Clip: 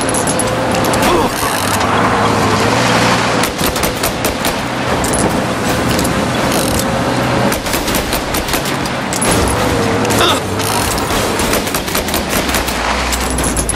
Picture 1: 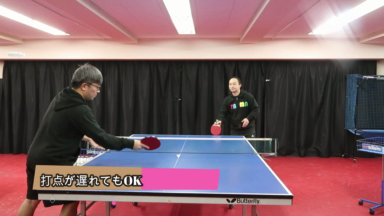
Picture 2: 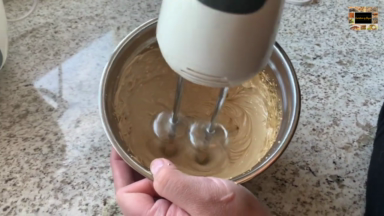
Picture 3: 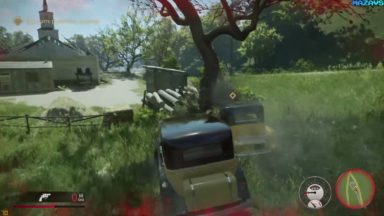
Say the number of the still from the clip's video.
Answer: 3